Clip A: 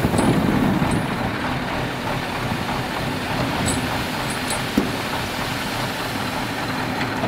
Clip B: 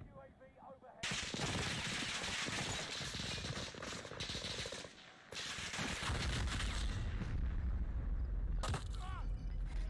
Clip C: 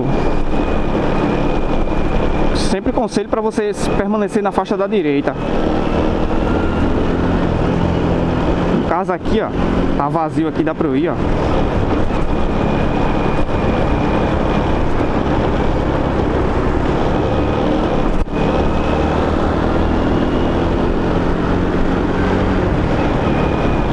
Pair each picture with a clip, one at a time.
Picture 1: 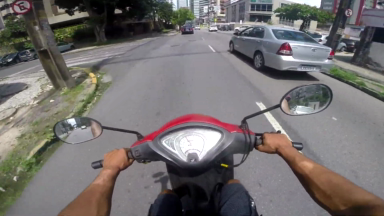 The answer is C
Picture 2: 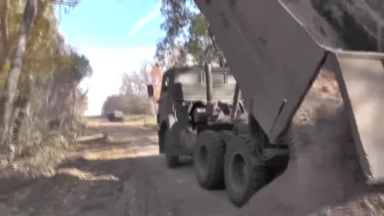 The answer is A